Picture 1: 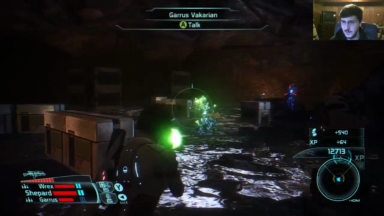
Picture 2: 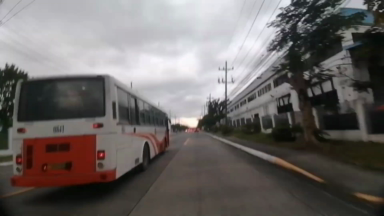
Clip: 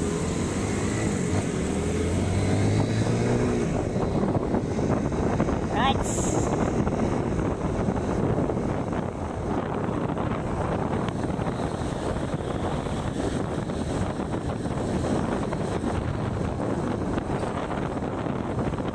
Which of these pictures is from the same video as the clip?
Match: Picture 2